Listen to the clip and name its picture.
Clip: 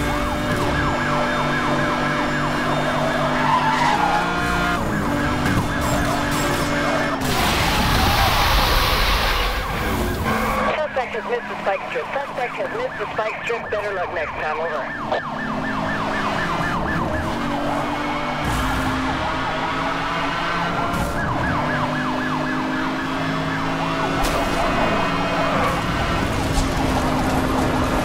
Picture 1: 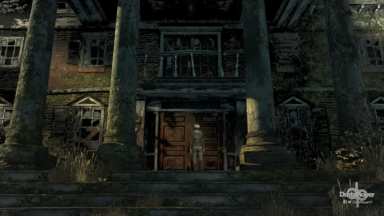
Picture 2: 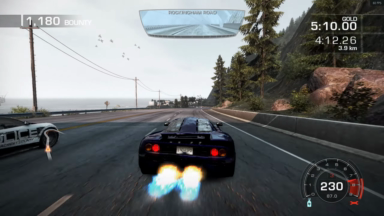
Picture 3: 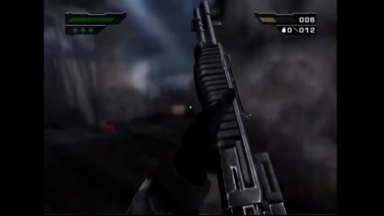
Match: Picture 2